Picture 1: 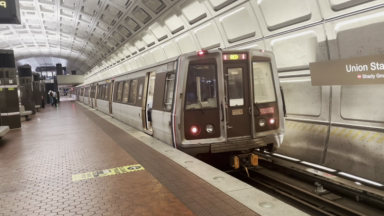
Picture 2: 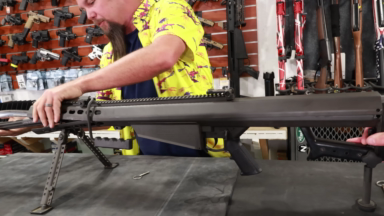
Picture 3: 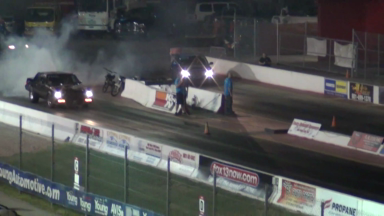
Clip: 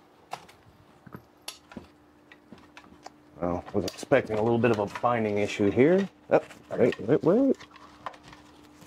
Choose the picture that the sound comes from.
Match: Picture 2